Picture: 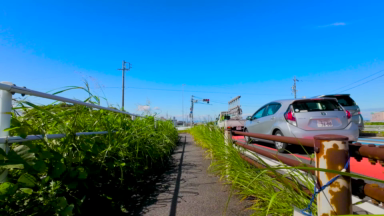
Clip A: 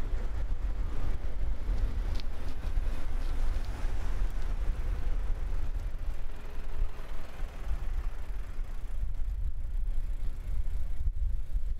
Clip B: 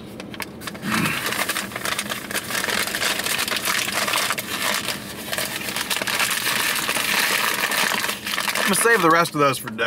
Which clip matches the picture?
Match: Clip A